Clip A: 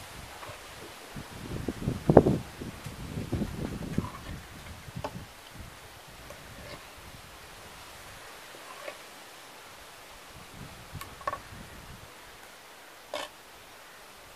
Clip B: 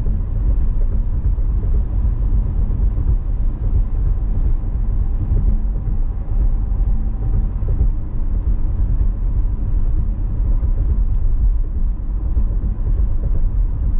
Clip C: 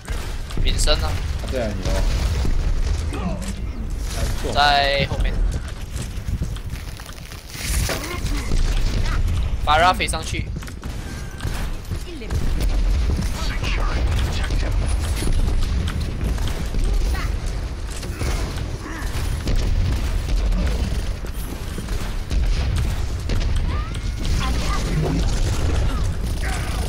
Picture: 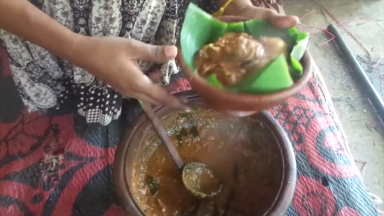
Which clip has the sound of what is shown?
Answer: A